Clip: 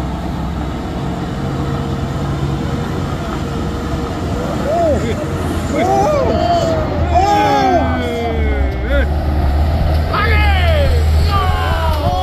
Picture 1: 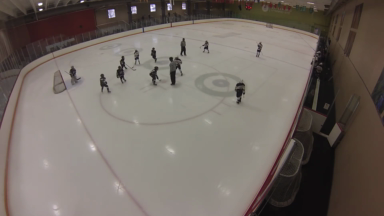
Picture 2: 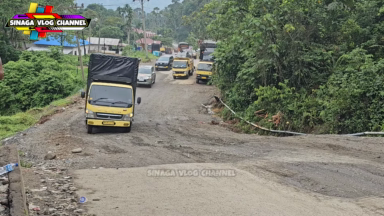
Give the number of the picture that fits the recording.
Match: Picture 2